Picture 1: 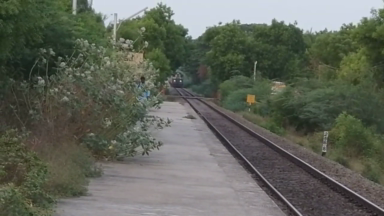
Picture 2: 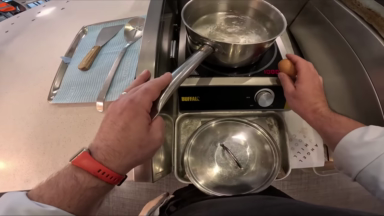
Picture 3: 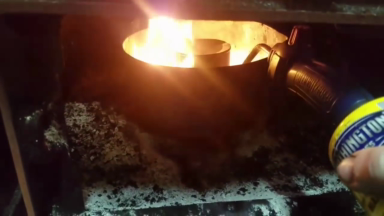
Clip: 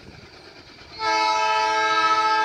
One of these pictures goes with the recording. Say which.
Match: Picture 1